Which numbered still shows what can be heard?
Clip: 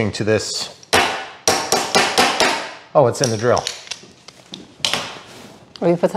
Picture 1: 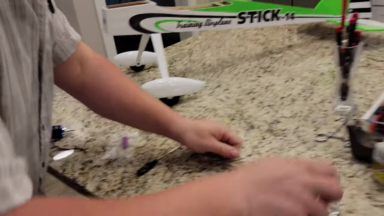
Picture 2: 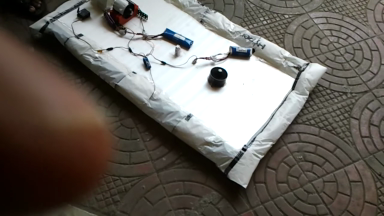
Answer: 1